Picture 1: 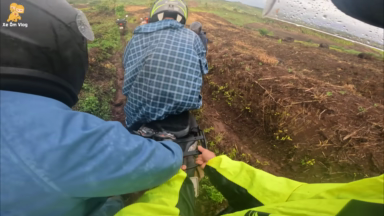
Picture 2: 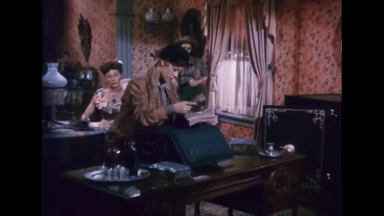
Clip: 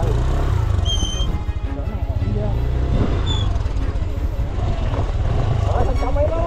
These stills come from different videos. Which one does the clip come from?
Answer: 1